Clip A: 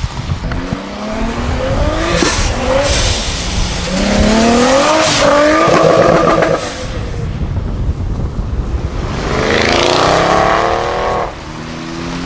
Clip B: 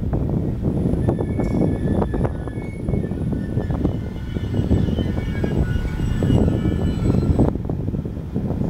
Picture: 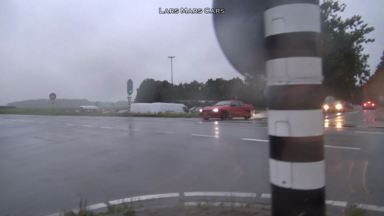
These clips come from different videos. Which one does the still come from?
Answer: A